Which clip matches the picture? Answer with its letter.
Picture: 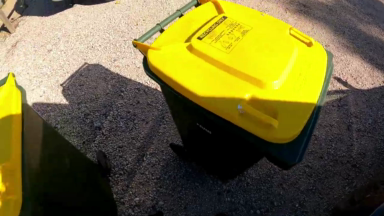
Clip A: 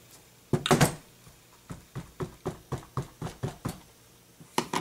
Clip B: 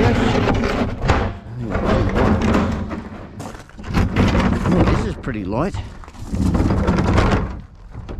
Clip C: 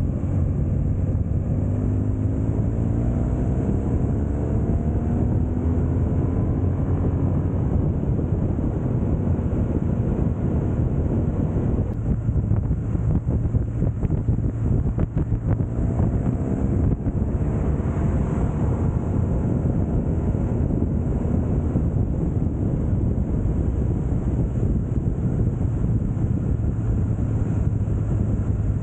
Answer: B